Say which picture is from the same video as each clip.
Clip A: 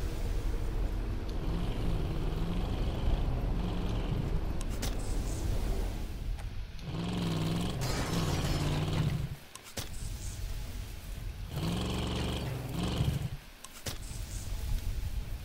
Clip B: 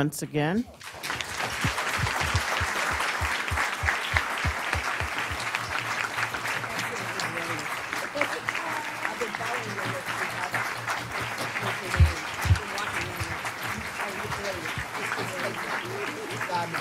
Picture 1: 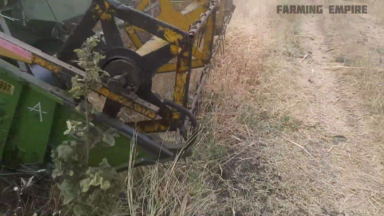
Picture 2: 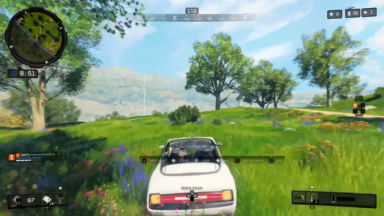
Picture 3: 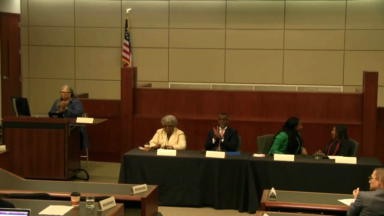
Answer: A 2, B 3